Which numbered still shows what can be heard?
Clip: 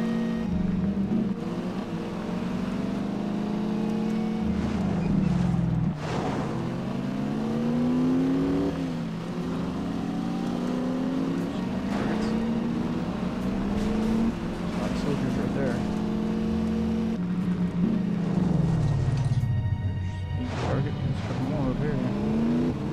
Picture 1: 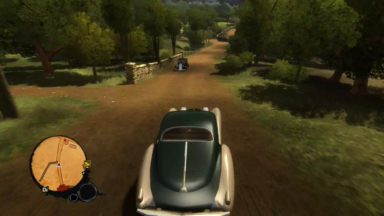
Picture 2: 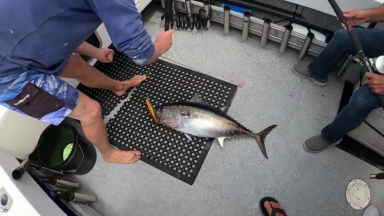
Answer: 1